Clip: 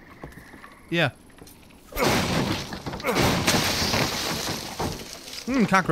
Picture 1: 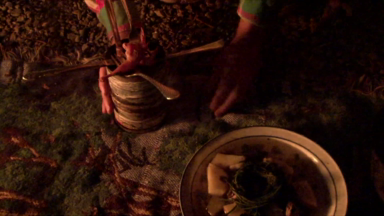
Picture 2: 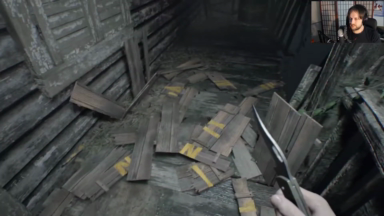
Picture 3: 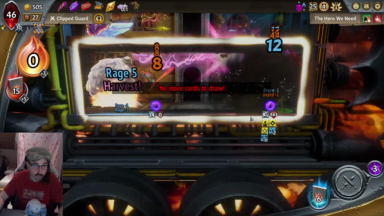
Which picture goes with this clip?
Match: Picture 2